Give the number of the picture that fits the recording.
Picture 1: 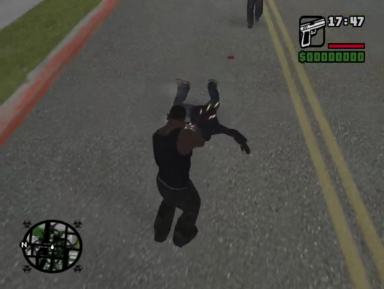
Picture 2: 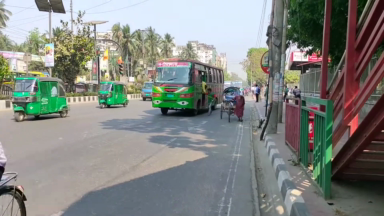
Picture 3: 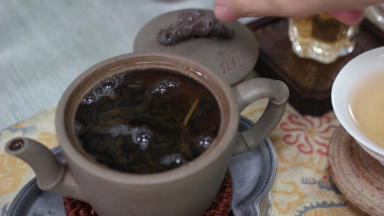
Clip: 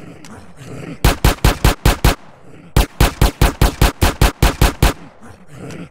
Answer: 1